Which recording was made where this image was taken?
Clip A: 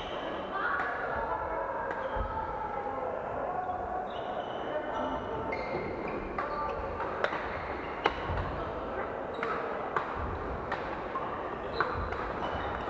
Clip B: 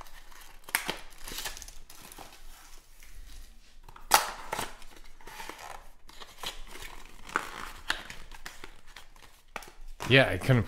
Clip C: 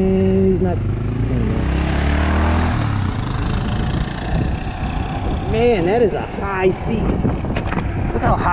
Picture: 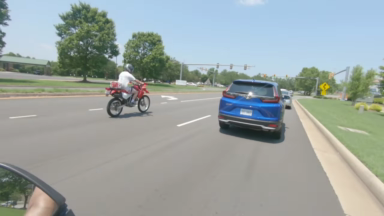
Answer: C